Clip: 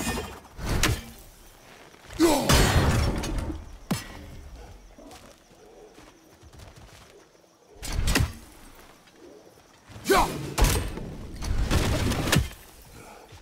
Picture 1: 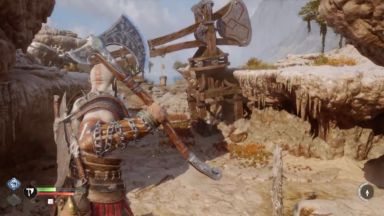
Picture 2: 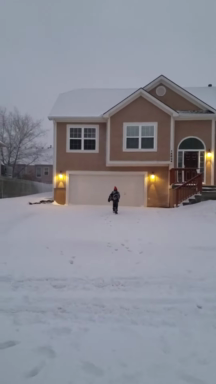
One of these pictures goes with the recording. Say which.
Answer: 1